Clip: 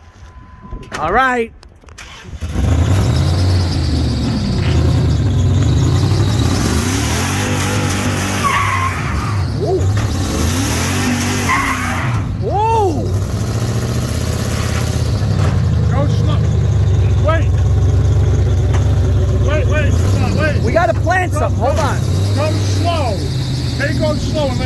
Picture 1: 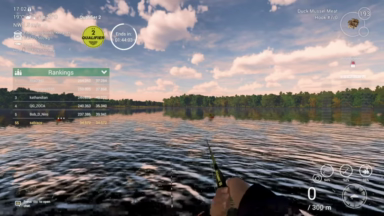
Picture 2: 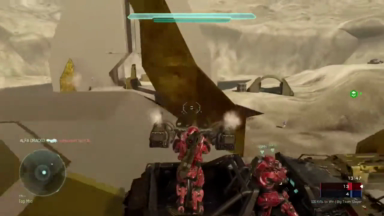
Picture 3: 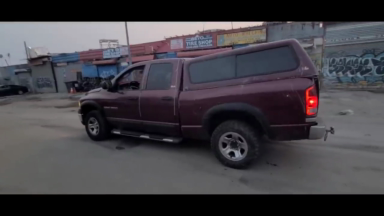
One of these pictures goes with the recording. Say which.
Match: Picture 3